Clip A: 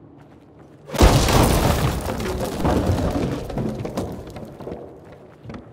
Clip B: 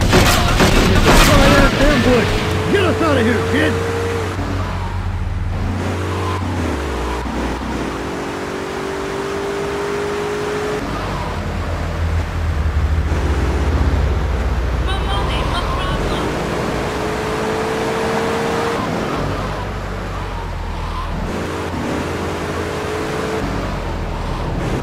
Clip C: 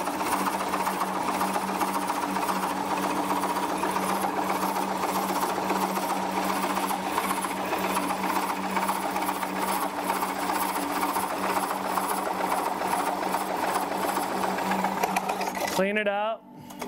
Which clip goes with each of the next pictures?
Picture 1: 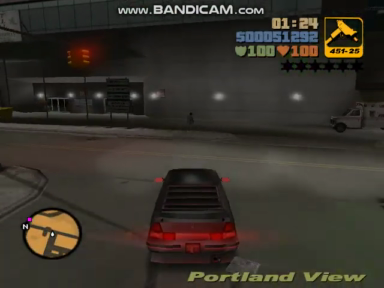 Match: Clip B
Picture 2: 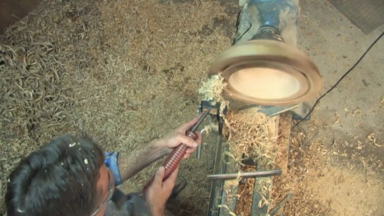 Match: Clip C